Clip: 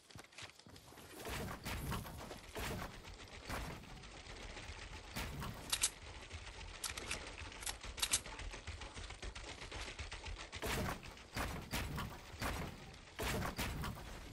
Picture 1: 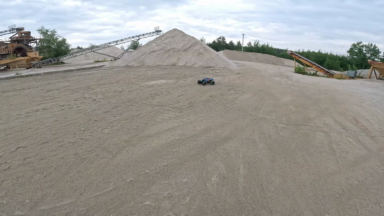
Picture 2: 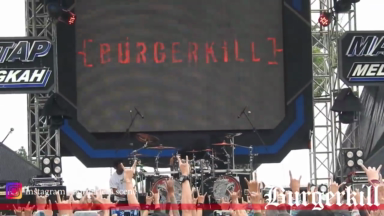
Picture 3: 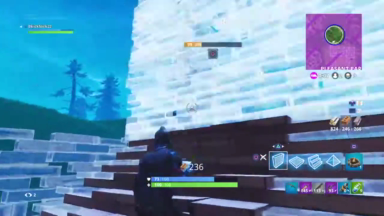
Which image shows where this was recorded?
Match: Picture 3